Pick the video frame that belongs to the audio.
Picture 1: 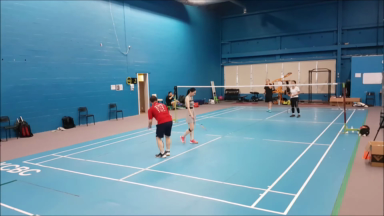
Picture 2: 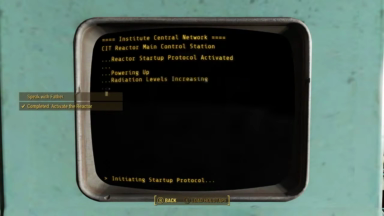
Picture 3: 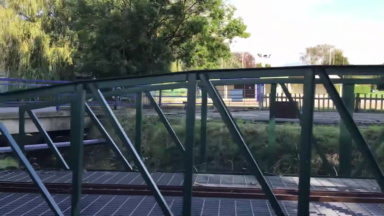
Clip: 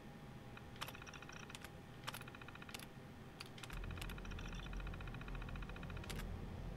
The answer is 2